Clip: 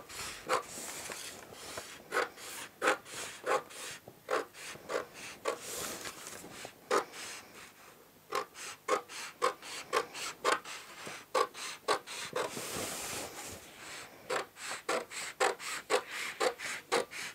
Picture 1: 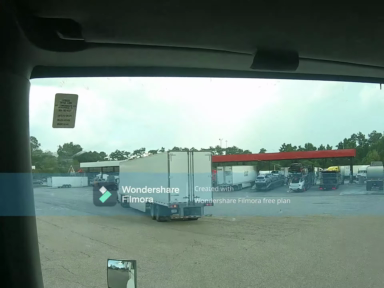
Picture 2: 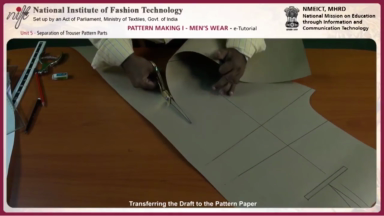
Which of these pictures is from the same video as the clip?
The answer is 2